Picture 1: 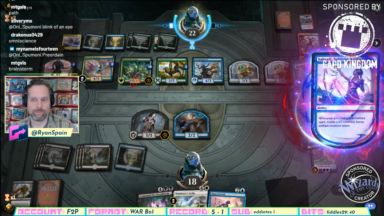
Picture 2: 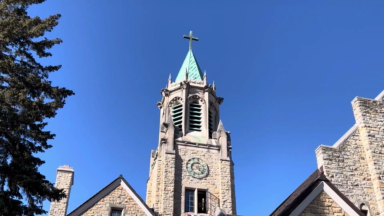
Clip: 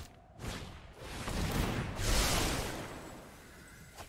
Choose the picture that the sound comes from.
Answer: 1